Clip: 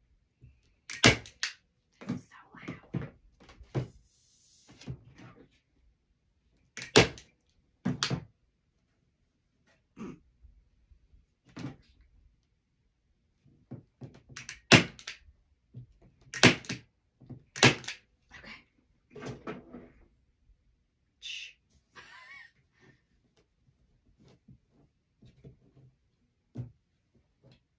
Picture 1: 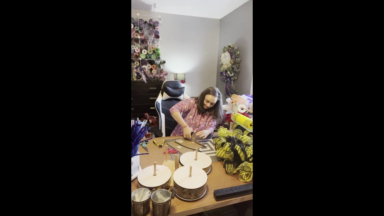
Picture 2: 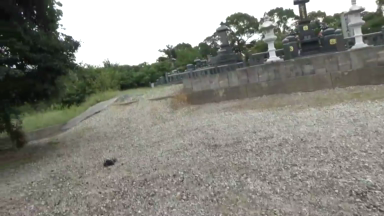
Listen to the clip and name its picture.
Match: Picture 1